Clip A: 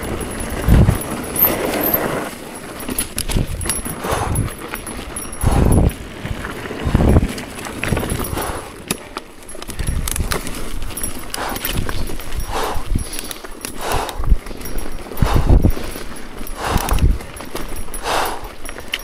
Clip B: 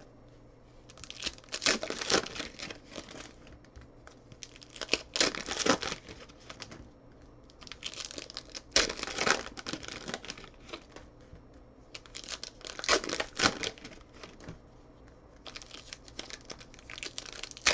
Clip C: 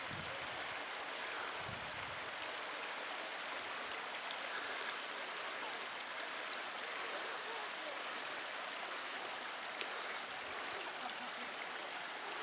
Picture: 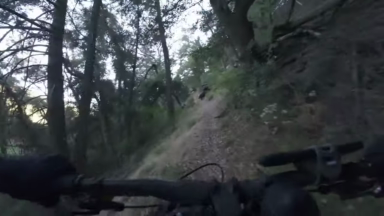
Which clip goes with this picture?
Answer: A